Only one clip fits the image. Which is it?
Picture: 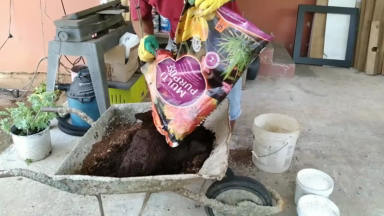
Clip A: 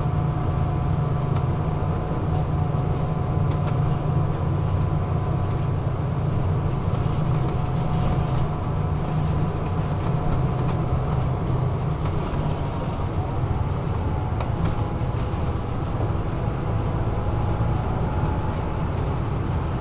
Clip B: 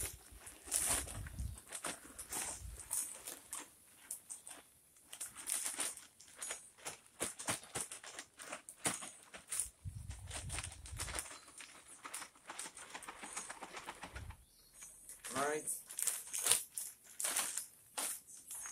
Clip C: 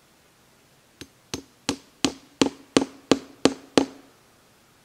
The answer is B